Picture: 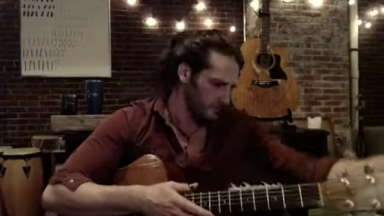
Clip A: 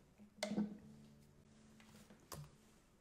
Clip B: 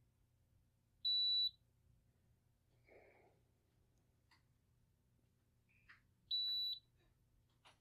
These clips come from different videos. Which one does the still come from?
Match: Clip A